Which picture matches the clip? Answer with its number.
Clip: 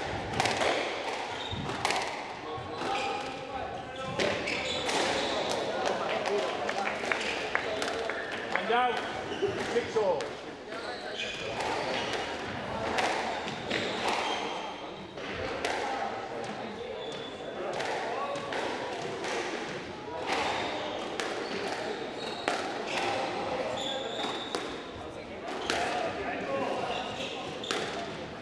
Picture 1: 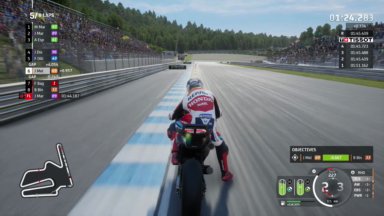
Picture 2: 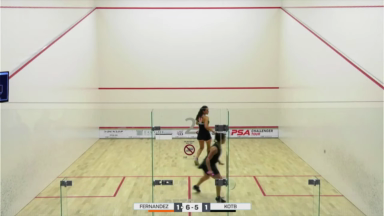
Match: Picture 2